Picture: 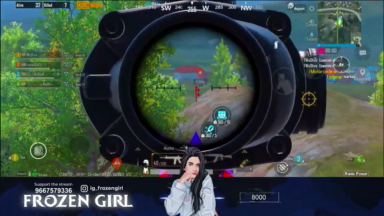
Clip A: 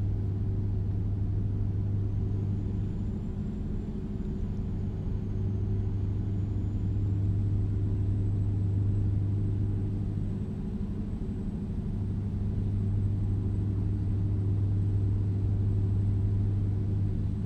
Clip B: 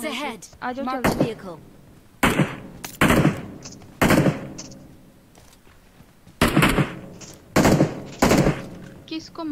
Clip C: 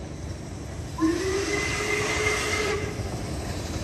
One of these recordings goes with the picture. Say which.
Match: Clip B